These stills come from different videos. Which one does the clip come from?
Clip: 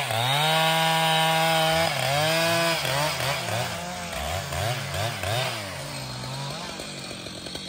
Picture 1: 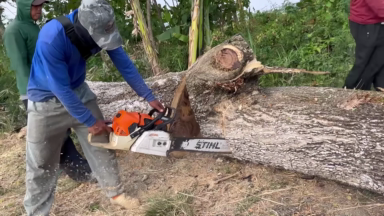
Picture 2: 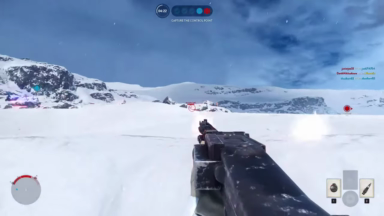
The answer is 1